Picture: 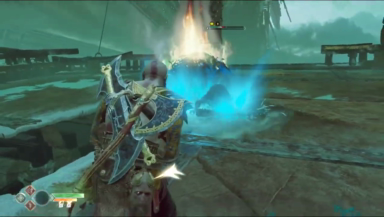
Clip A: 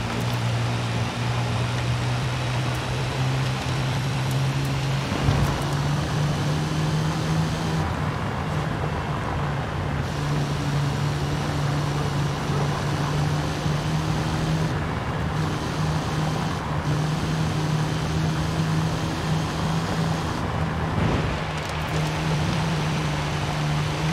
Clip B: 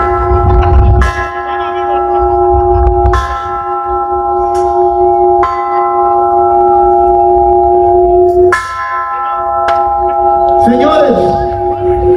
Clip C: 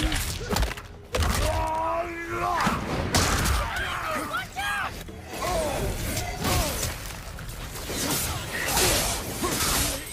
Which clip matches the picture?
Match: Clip C